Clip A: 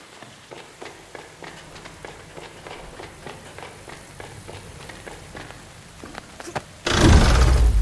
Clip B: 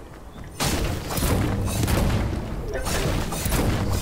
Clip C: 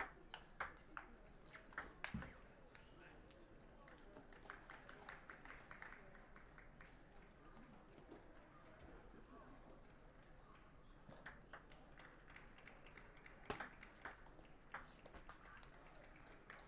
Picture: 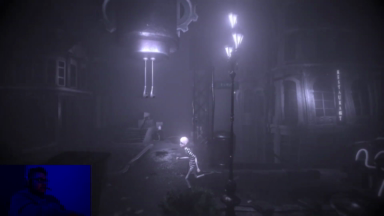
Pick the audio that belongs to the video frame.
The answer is A